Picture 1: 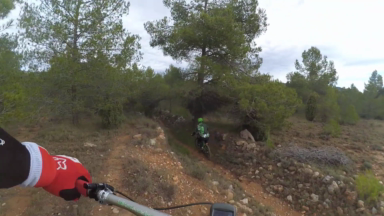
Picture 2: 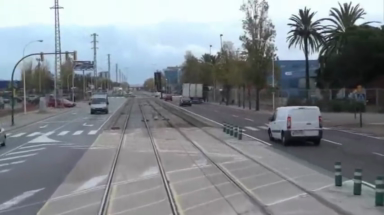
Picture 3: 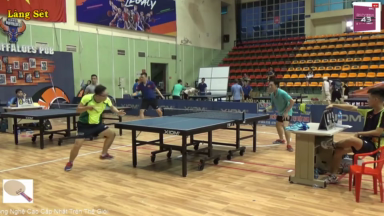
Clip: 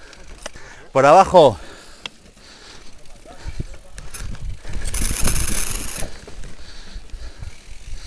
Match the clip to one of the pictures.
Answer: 1